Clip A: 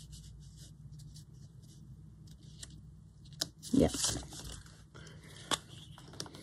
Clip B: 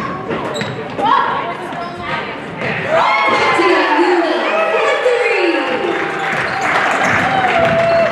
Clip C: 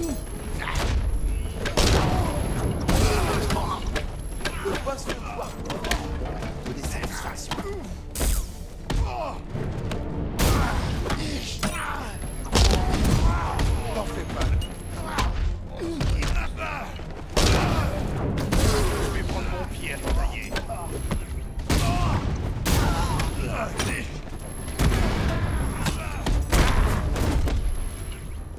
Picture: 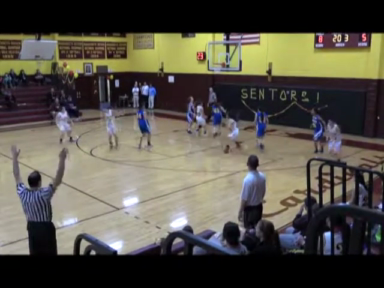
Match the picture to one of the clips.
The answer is B